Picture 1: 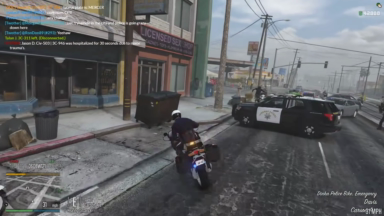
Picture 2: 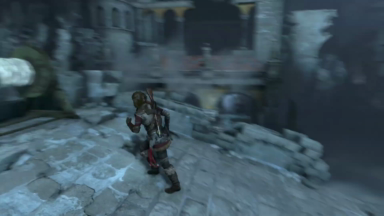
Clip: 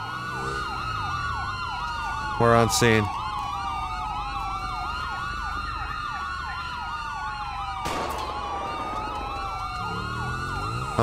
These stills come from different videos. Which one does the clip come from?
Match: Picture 1